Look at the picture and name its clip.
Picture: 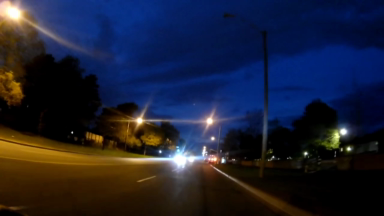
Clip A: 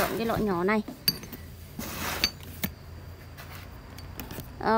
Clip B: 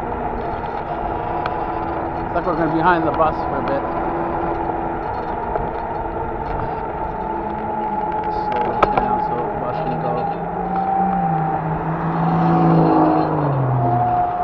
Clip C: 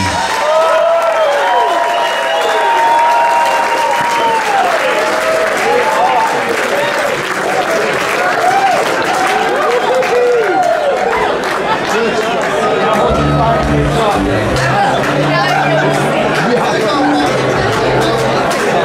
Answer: B